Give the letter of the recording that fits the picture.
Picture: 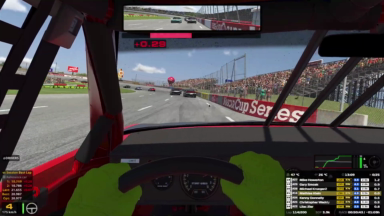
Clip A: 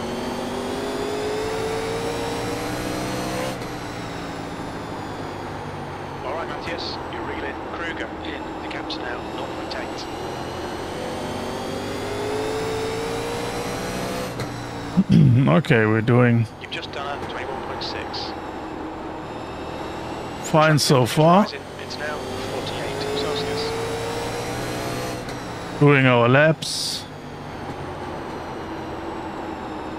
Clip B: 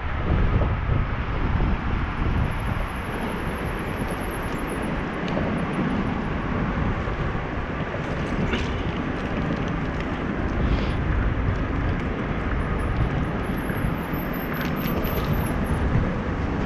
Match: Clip A